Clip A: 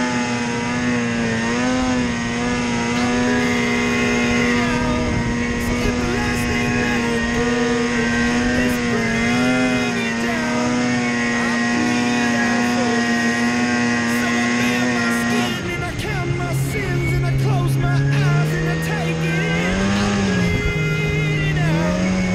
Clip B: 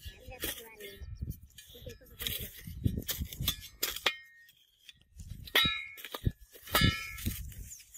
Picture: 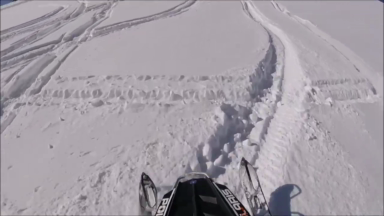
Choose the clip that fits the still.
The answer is A